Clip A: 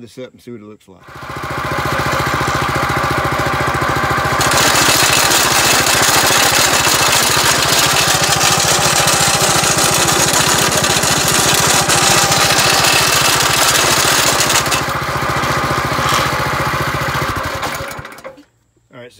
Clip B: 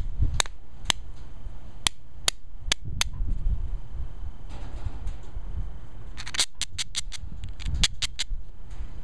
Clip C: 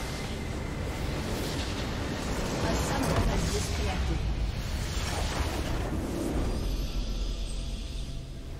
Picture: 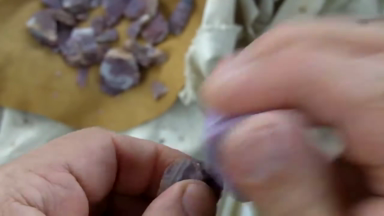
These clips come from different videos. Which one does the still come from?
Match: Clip B